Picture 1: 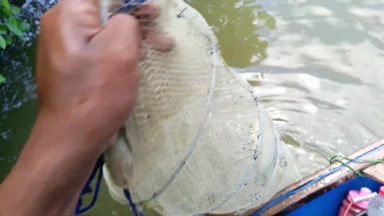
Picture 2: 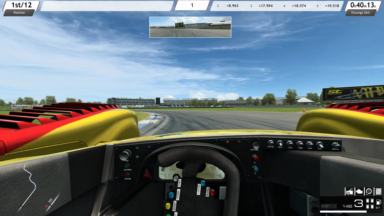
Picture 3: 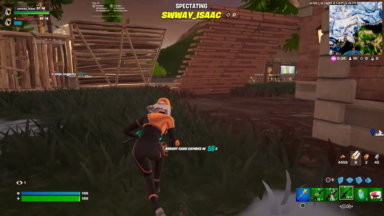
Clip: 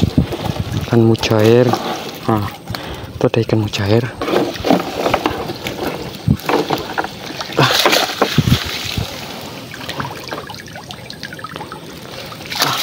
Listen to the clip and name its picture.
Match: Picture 1